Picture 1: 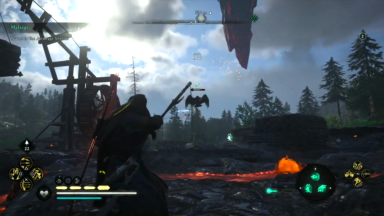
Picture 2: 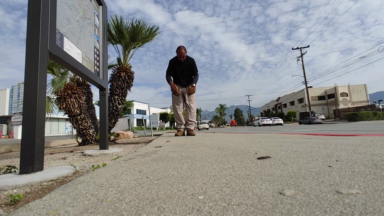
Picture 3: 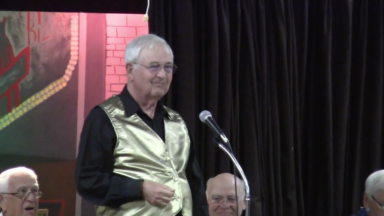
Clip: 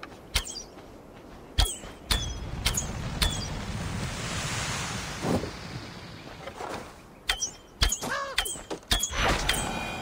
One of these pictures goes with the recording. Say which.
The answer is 1